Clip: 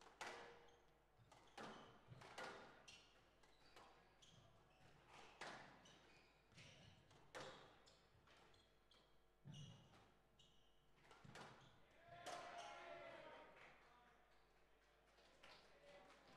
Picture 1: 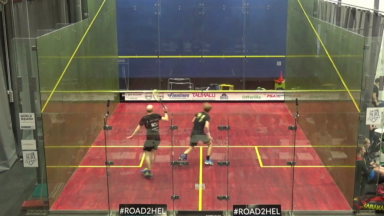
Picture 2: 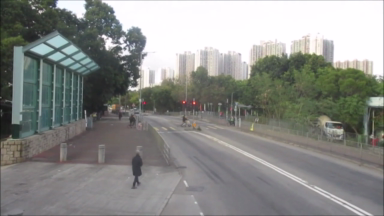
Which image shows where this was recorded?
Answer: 1